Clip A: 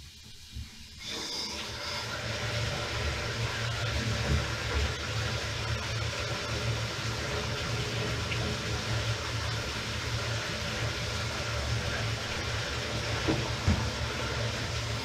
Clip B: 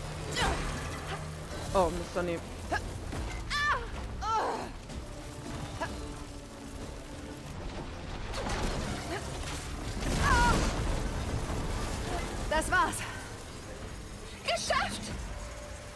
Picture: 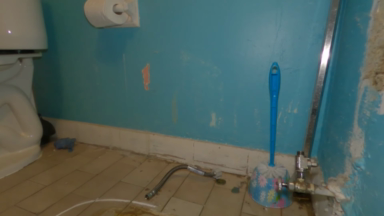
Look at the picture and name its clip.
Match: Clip A